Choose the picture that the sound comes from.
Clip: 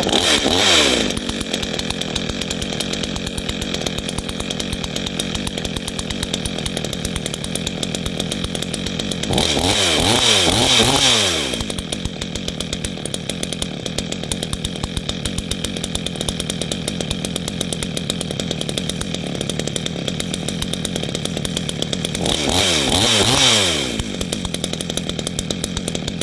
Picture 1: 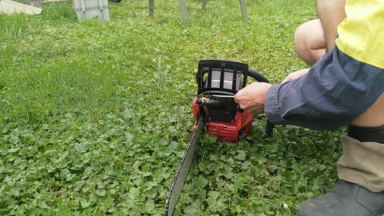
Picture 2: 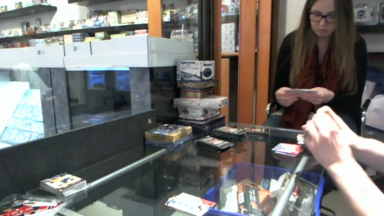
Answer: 1